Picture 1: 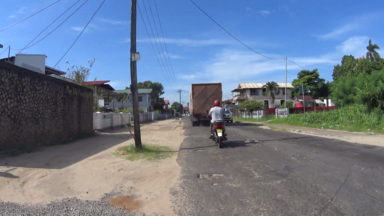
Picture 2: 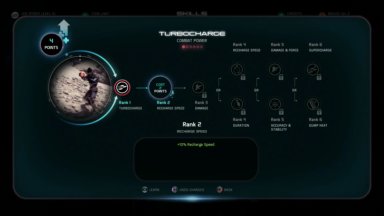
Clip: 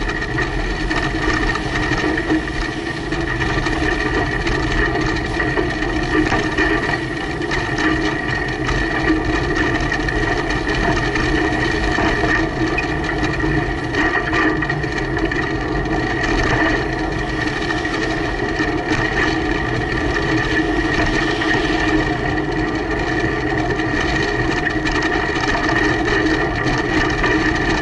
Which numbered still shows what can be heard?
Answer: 1